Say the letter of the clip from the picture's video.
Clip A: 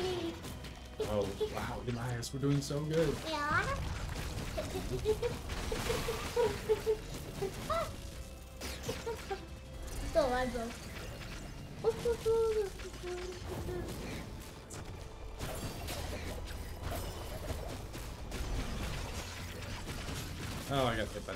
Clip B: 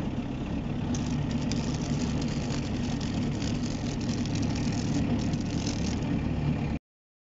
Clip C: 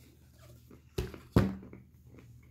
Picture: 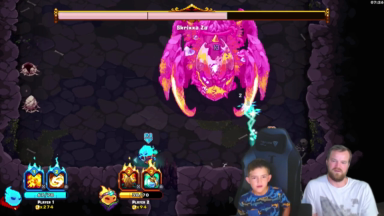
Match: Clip A